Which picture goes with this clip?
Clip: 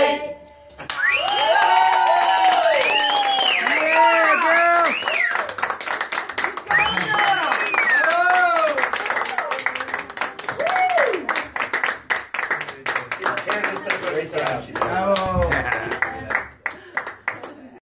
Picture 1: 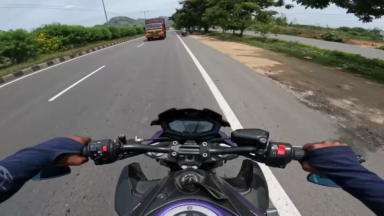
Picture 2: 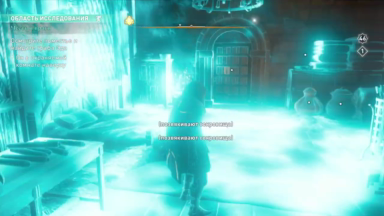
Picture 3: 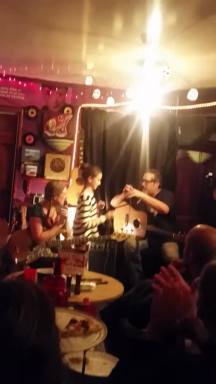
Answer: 3